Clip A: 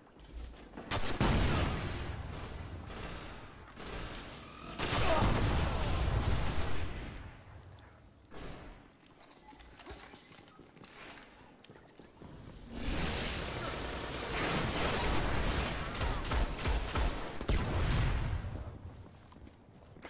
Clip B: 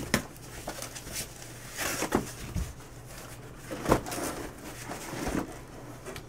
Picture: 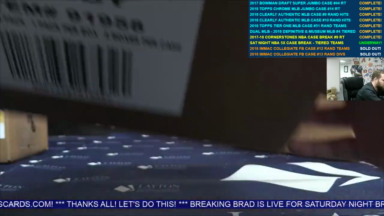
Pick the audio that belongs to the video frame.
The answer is B